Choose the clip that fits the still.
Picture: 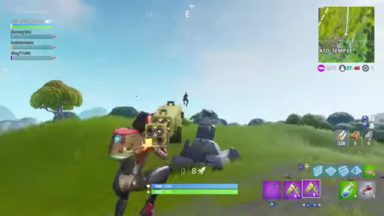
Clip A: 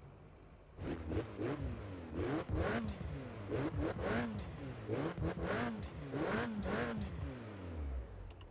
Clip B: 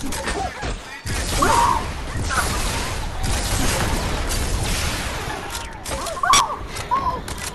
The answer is B